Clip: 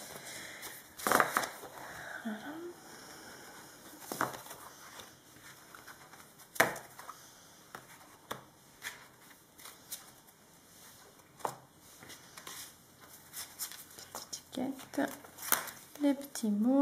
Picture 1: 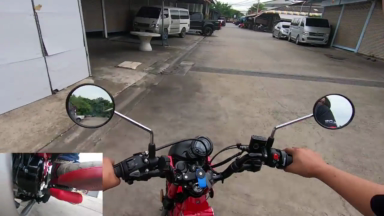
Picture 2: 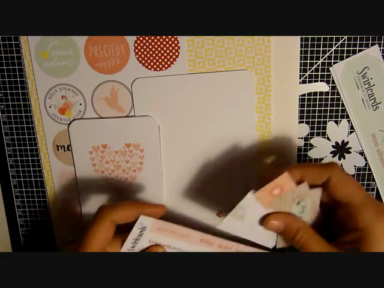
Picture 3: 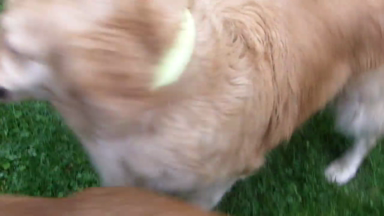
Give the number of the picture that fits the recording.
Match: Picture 2